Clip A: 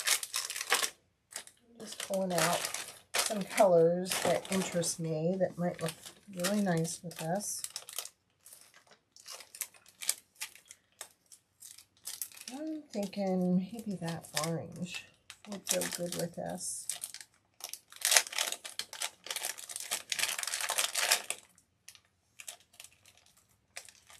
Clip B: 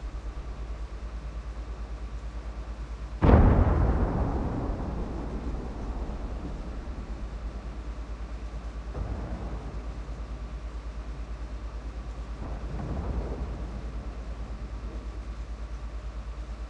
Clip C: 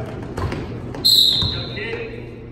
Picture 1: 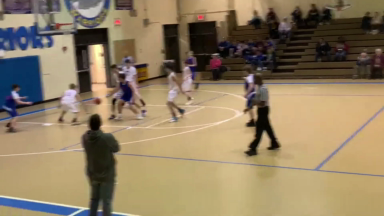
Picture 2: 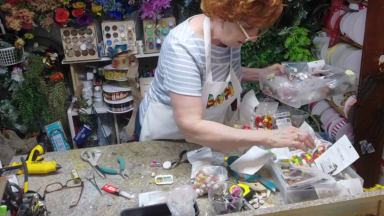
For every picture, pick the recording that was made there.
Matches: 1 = C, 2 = A